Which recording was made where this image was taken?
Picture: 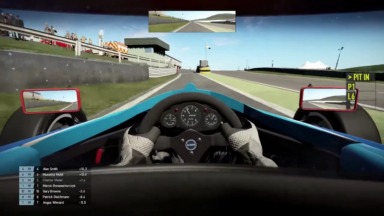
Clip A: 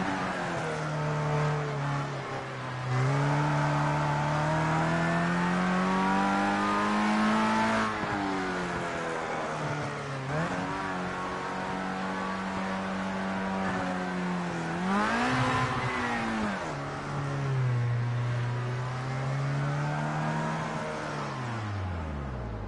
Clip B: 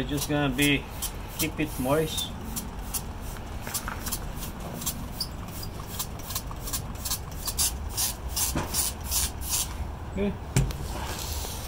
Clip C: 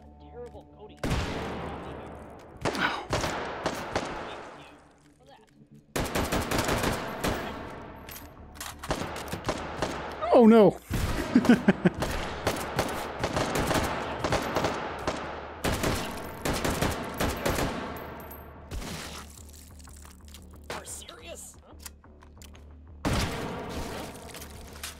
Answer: A